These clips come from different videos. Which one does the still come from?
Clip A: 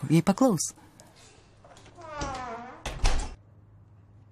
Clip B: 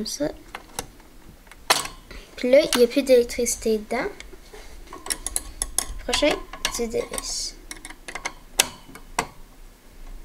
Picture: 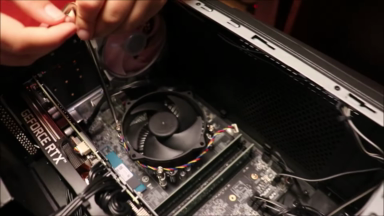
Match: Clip B